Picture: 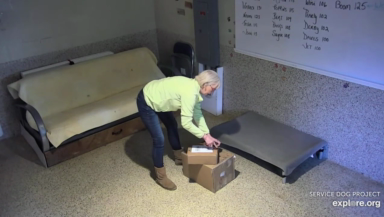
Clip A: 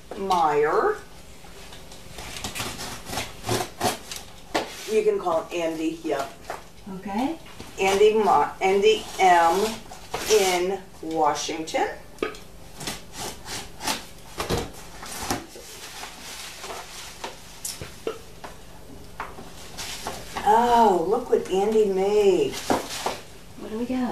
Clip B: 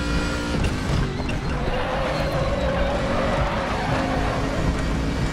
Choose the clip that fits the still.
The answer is A